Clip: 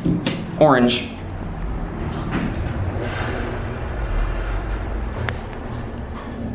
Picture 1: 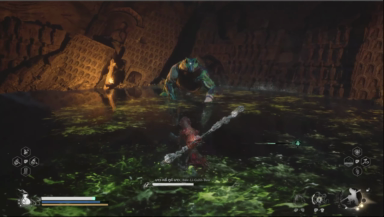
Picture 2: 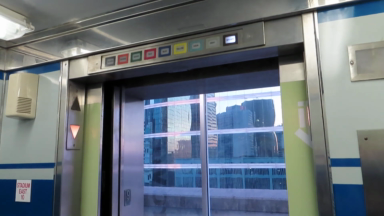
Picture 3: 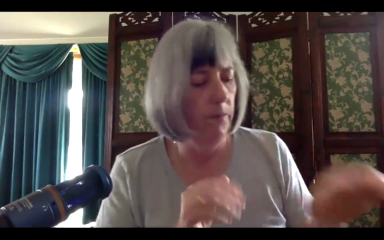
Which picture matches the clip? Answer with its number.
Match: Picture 2